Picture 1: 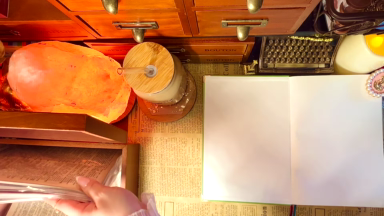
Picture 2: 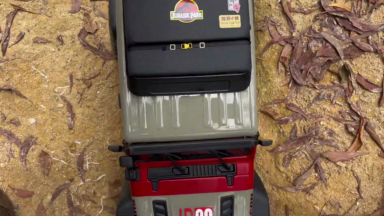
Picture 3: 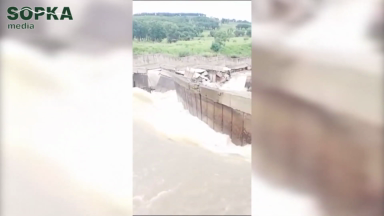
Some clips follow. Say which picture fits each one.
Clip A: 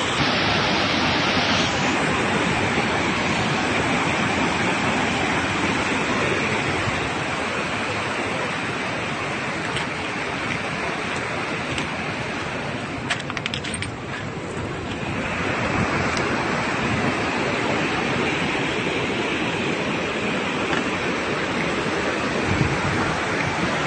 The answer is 3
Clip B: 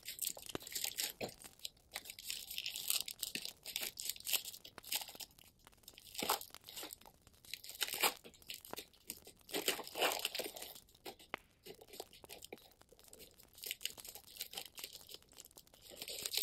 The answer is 1